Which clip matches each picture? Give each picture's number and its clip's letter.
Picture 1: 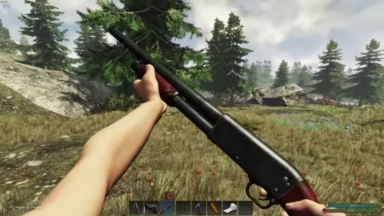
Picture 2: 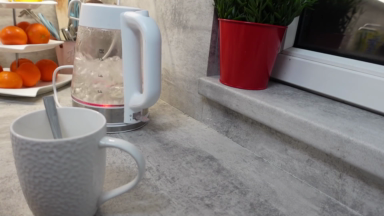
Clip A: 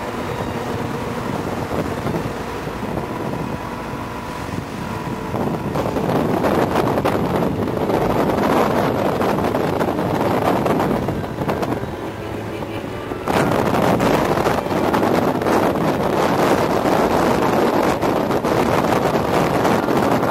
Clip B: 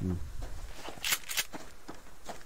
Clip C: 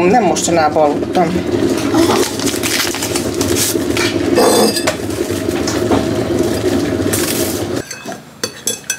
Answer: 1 B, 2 C